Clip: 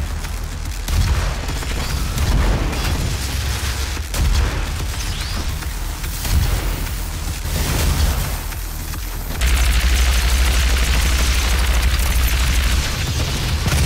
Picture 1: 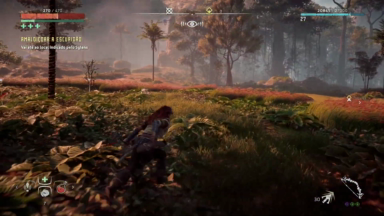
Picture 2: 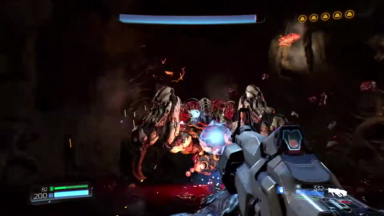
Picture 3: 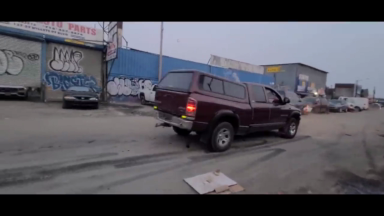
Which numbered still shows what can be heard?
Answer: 2